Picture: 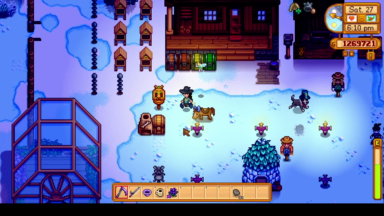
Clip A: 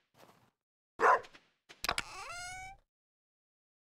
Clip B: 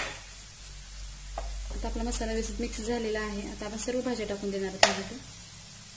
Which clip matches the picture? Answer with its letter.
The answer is A